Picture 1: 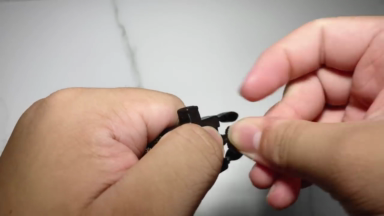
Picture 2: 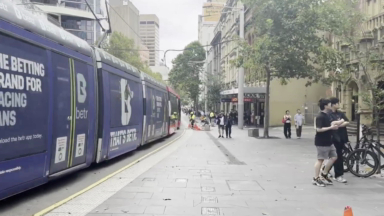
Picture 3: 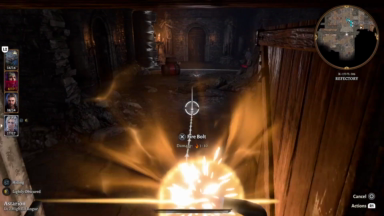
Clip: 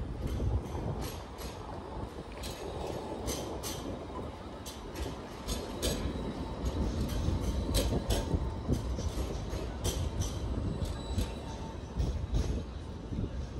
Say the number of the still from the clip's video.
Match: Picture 2